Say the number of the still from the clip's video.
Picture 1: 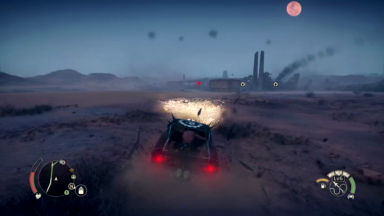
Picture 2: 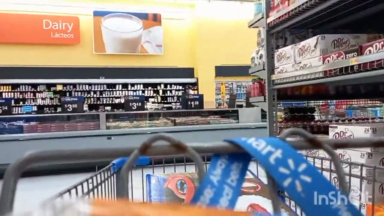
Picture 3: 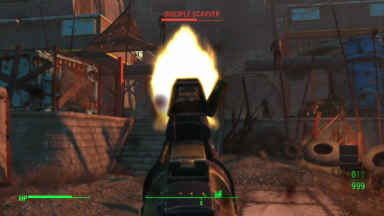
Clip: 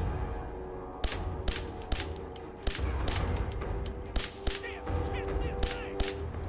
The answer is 3